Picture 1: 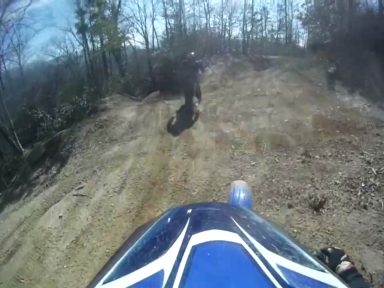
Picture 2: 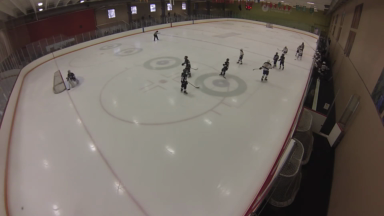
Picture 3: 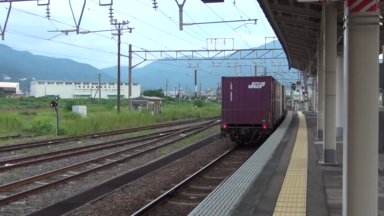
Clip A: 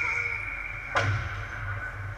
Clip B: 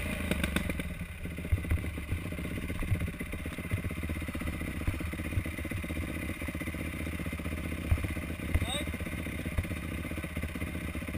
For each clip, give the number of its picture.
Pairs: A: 2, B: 1